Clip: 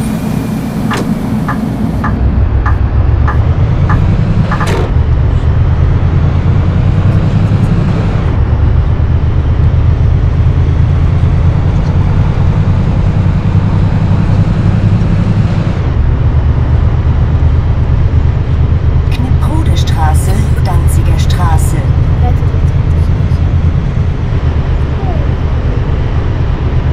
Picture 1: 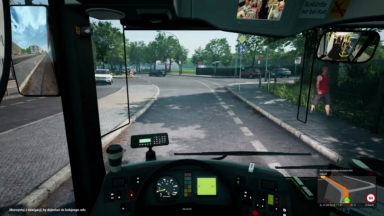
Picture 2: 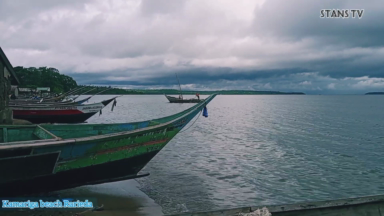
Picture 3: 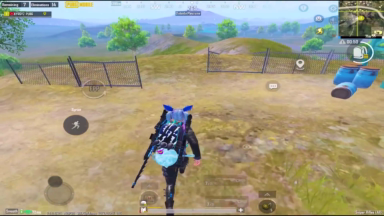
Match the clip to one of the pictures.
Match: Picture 1